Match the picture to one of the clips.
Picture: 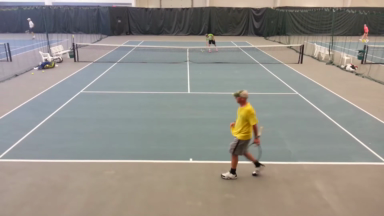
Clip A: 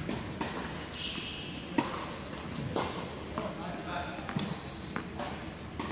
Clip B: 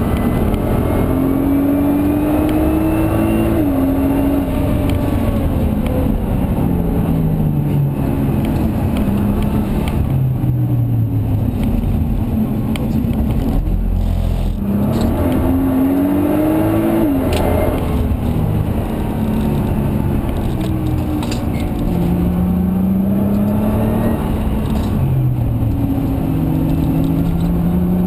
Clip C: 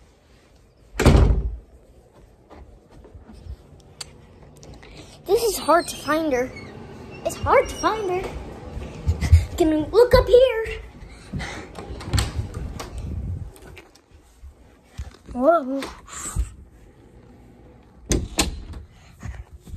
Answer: A